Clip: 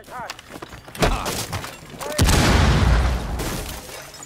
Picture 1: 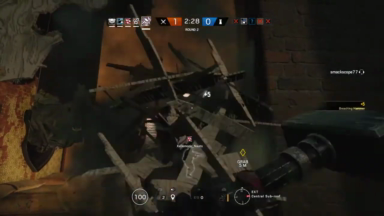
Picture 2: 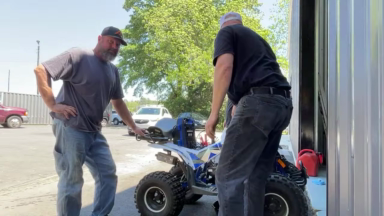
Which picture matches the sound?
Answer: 1